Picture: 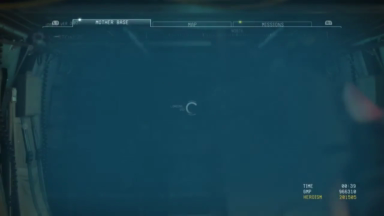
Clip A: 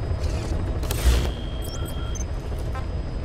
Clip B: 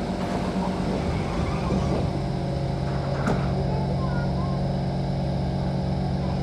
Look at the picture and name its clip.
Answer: A